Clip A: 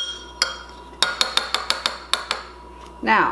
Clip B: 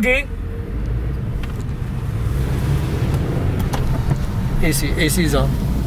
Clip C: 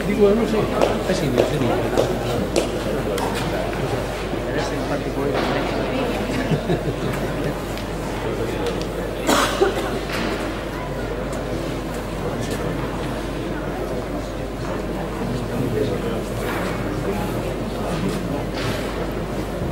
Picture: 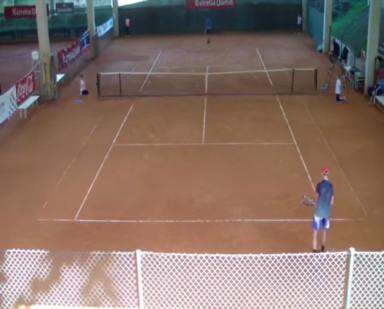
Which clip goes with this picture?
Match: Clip C